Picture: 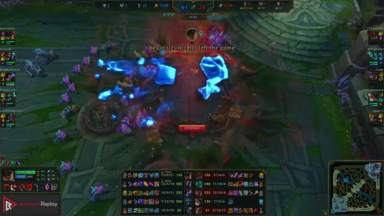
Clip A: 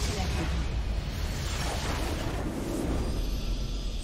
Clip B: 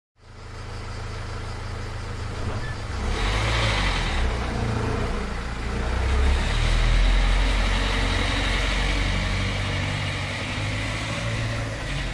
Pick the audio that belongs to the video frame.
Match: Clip A